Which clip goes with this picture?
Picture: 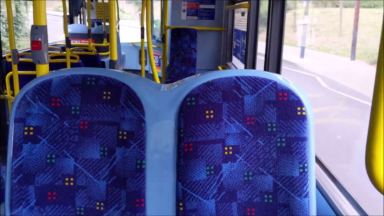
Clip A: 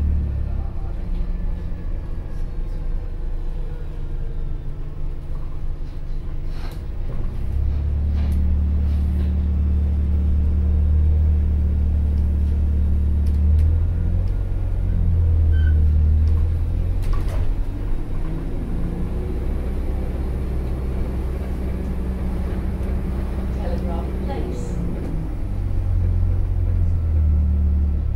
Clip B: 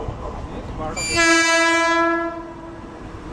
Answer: A